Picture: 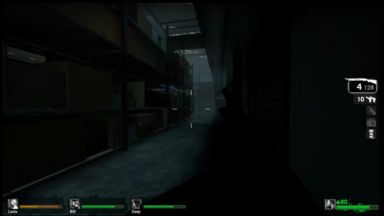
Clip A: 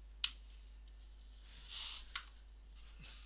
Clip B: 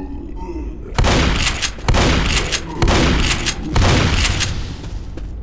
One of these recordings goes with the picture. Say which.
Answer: B